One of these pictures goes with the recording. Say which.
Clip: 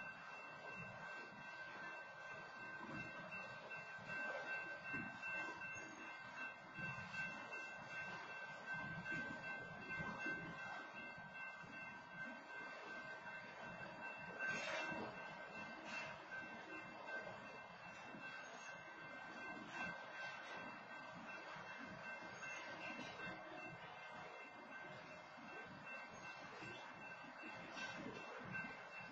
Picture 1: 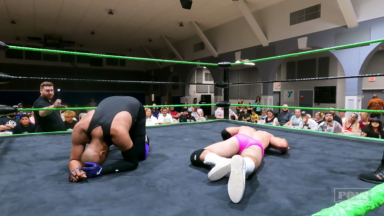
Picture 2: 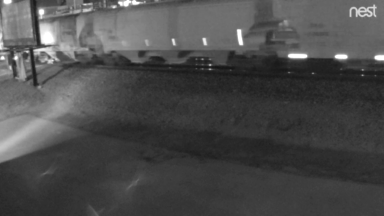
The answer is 2